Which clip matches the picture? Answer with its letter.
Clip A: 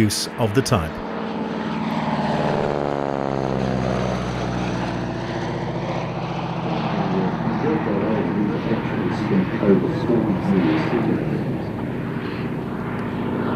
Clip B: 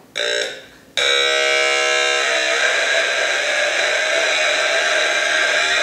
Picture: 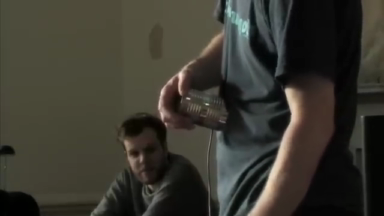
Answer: B